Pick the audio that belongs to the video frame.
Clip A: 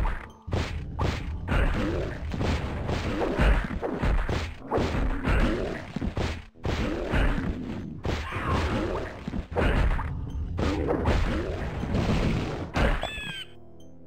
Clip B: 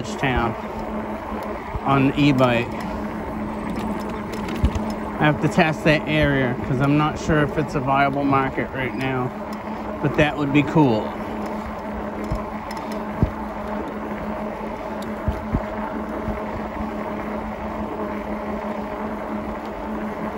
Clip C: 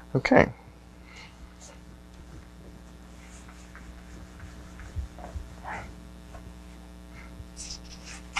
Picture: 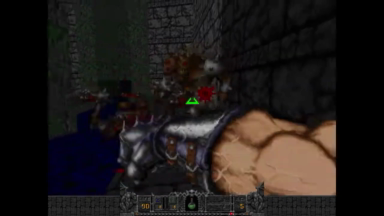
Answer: A